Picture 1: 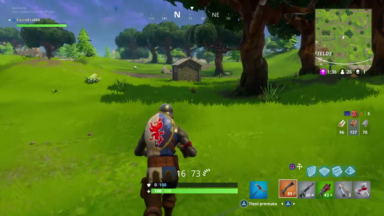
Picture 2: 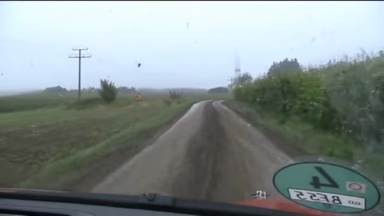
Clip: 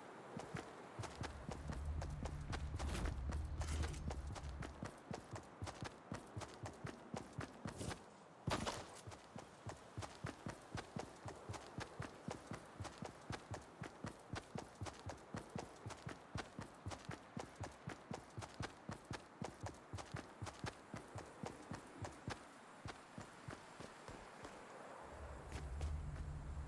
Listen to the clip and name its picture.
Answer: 1